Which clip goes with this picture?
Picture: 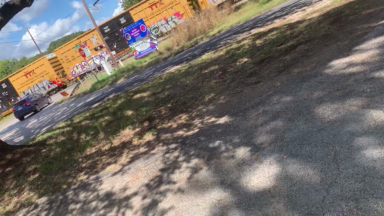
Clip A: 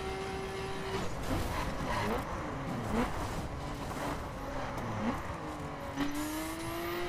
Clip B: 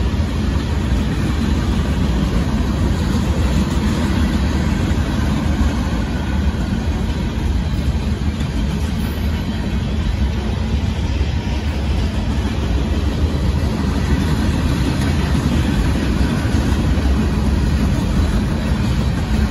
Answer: B